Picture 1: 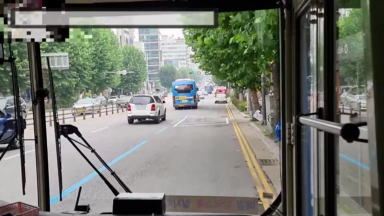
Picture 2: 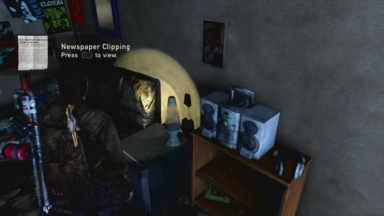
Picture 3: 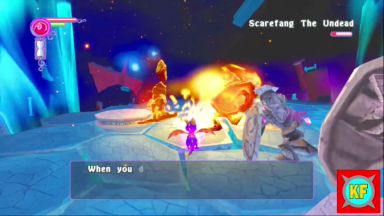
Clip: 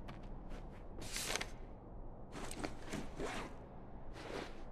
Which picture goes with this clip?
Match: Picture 2